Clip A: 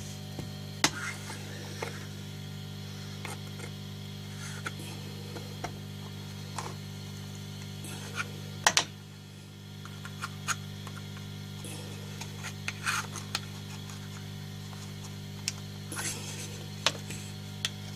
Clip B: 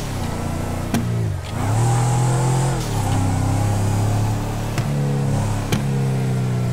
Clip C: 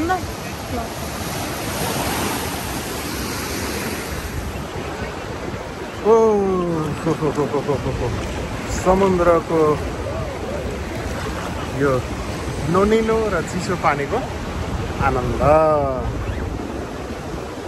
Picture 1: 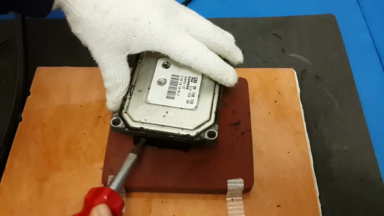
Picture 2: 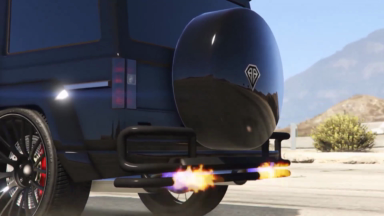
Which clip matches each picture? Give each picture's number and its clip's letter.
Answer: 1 A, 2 B